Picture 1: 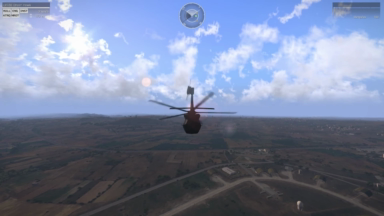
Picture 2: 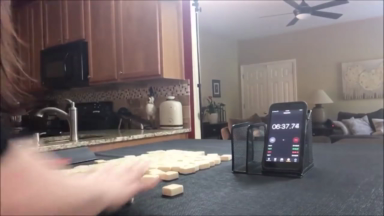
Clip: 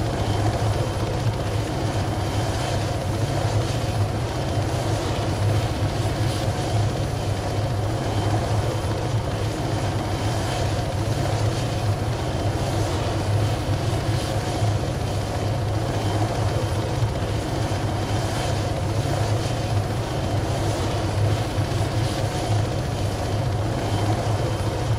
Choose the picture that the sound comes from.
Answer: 1